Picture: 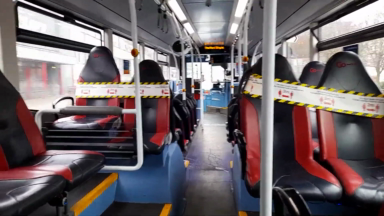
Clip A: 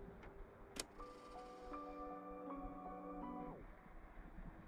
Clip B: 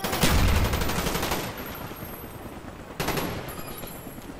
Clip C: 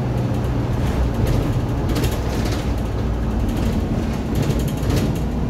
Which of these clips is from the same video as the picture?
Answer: C